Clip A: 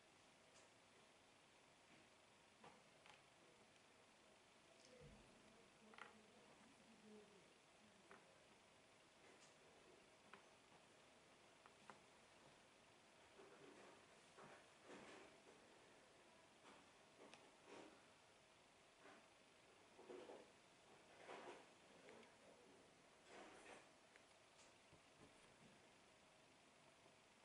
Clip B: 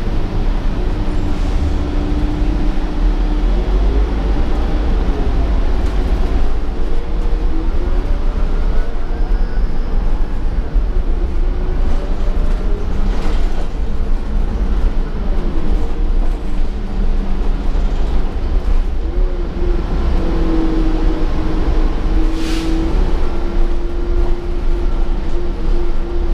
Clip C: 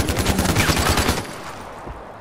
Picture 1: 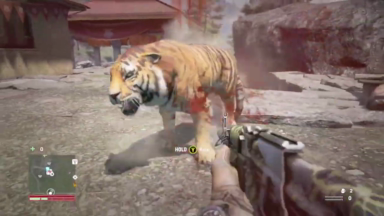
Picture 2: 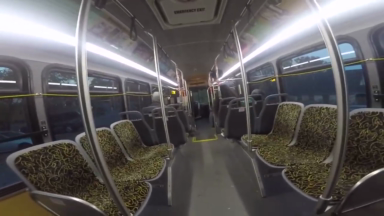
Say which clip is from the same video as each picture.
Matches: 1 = C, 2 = B